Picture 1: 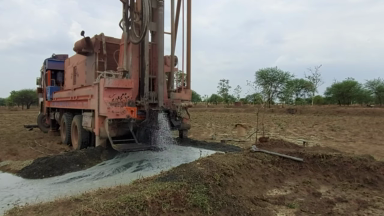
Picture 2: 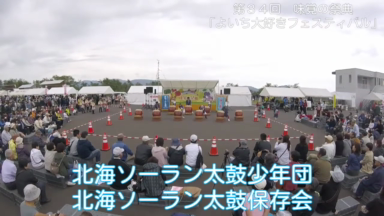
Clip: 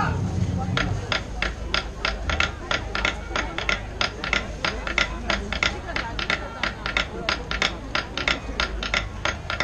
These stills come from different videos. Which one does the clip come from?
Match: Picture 2